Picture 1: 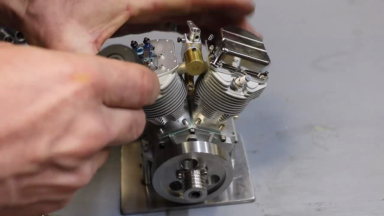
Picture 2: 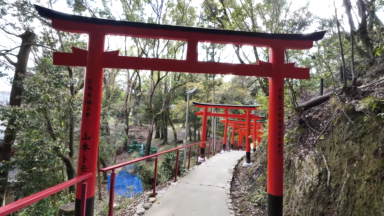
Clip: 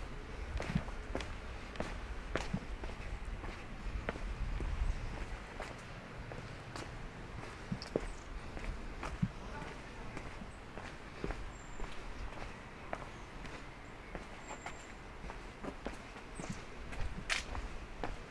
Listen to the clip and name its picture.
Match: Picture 2